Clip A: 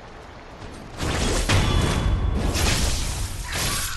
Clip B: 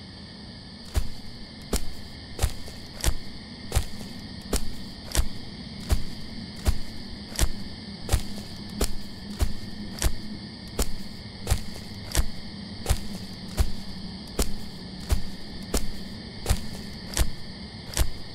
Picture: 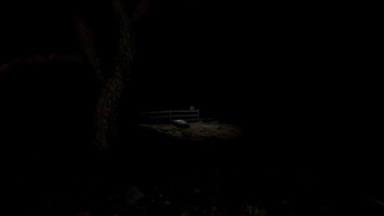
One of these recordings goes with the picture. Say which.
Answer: B